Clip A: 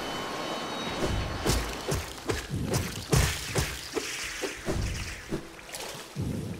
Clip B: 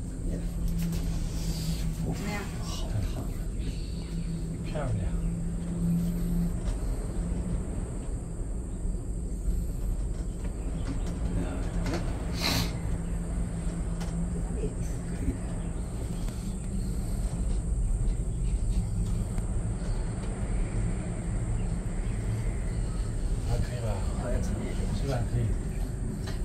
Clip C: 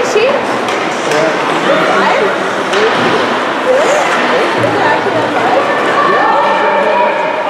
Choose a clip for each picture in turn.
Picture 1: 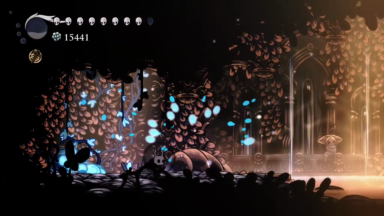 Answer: A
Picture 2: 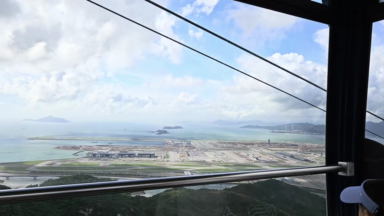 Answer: B